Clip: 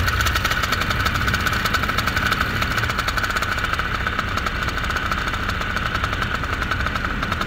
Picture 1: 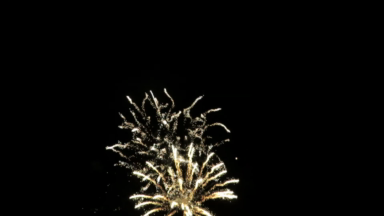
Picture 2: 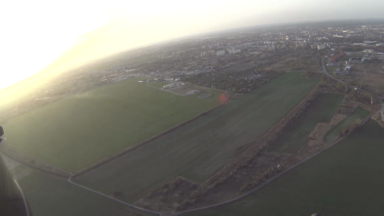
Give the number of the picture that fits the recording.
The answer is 2